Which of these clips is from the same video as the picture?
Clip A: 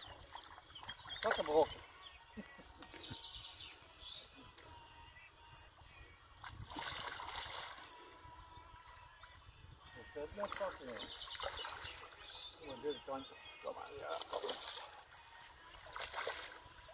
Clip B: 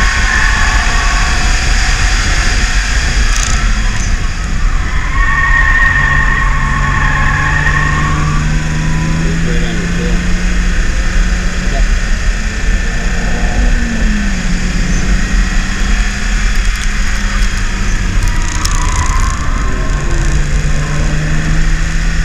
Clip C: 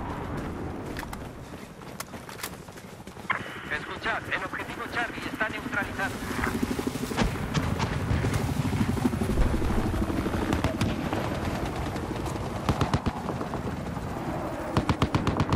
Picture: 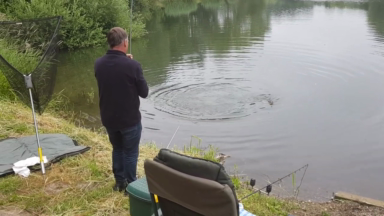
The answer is A